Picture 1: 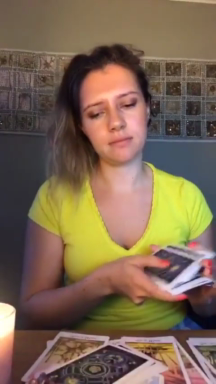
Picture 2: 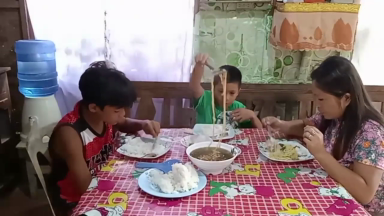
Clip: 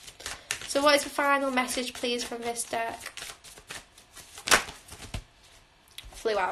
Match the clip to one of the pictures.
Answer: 1